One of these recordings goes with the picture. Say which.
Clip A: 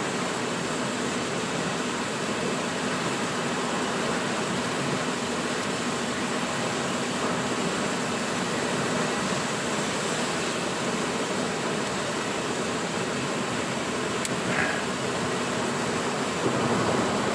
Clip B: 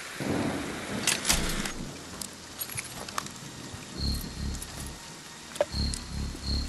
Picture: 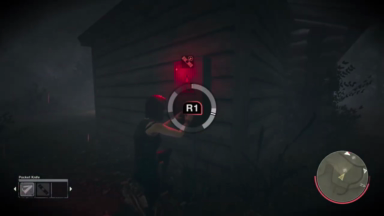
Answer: B